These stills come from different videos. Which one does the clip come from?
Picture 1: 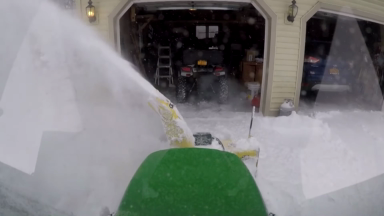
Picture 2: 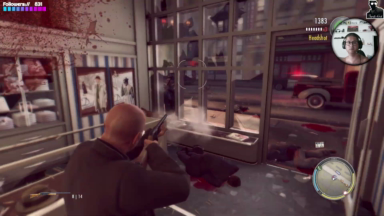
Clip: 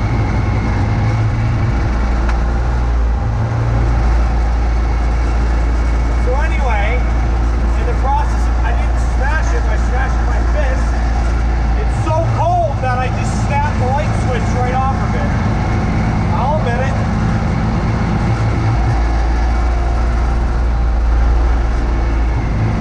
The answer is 1